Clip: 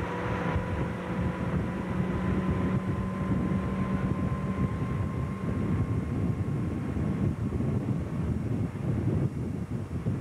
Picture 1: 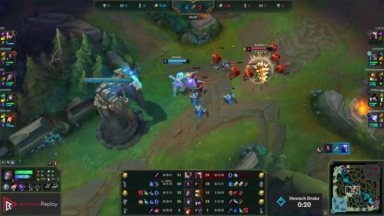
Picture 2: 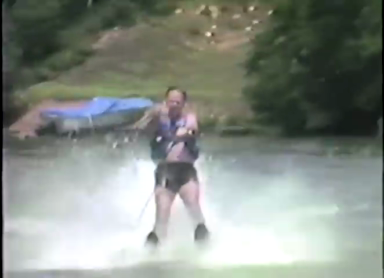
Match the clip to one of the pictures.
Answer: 2